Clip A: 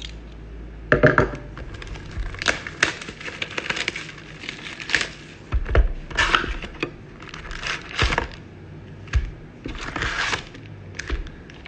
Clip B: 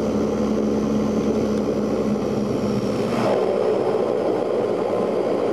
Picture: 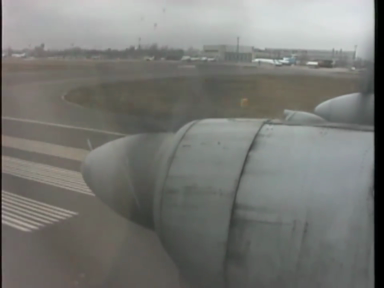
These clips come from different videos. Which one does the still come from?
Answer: B